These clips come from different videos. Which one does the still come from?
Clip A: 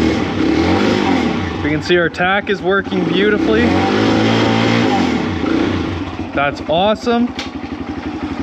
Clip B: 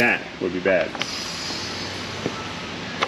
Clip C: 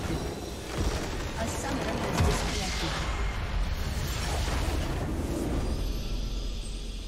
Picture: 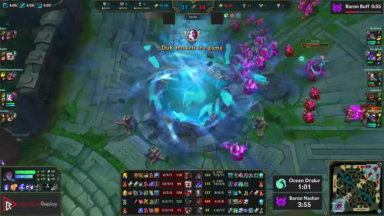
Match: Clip C